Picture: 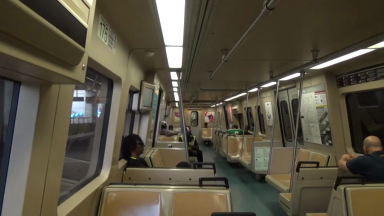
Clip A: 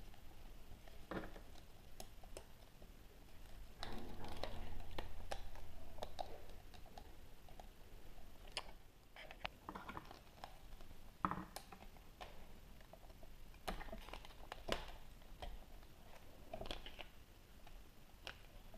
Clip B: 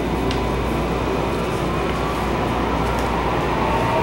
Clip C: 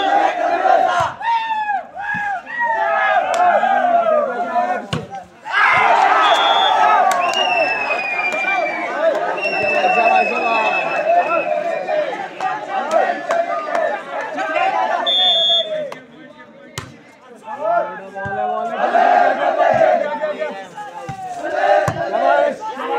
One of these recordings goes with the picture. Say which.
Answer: B